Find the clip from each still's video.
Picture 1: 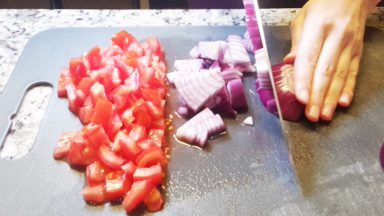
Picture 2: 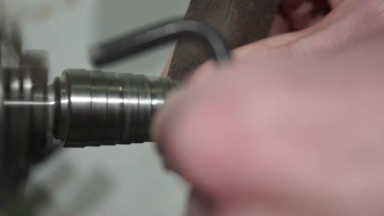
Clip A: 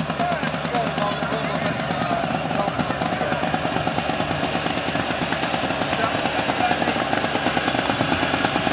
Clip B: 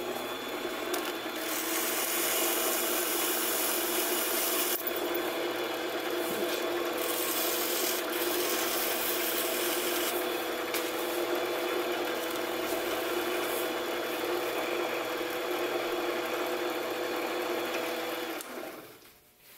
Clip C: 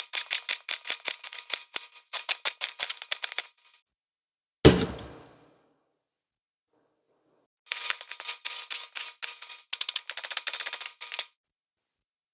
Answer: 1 C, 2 B